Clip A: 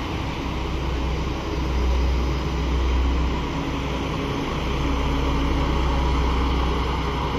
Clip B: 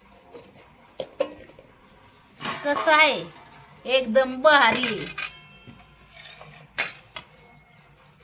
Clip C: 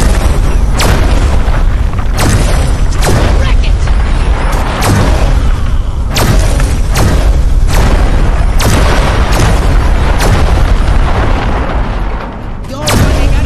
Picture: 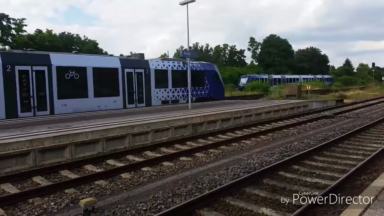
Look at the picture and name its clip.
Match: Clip A